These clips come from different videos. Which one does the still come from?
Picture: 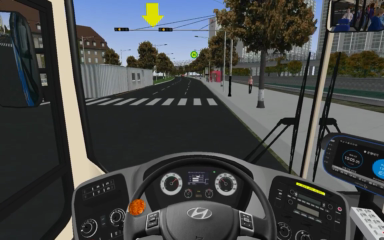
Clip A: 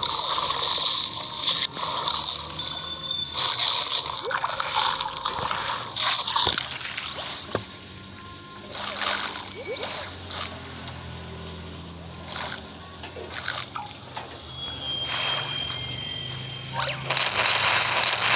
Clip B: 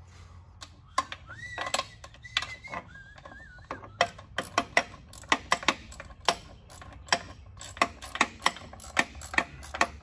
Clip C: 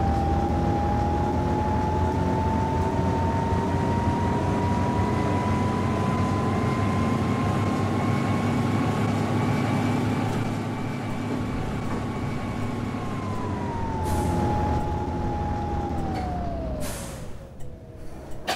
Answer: C